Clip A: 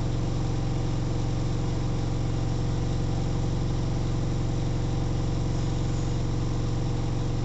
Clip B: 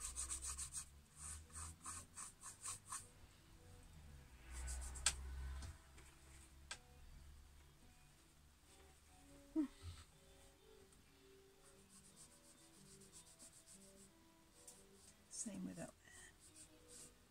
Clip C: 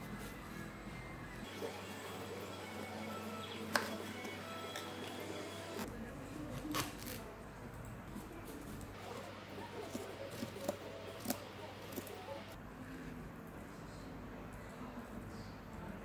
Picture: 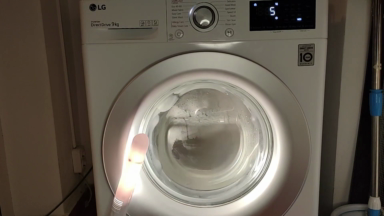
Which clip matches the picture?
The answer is A